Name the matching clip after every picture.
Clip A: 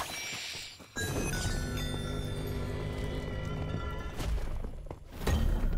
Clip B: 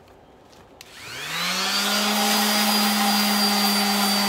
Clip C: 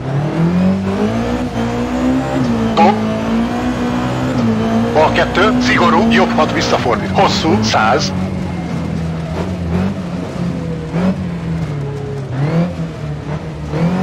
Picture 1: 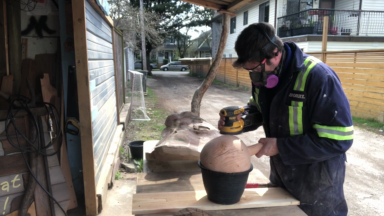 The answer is B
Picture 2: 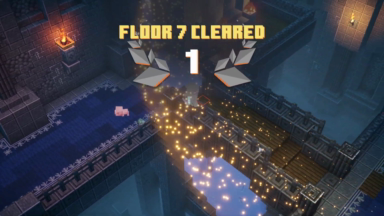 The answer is A